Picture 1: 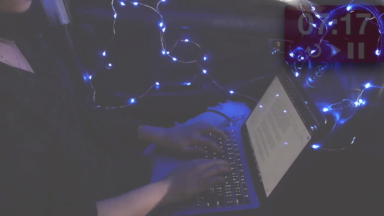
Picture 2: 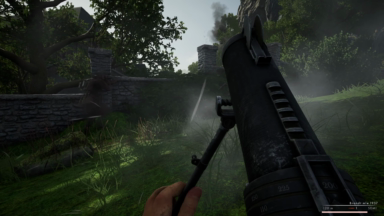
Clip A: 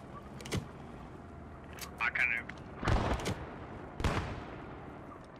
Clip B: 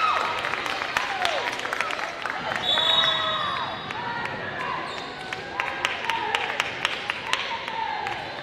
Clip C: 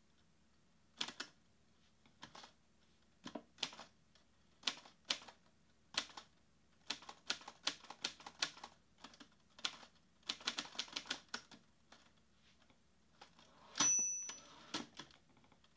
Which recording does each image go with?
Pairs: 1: C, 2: A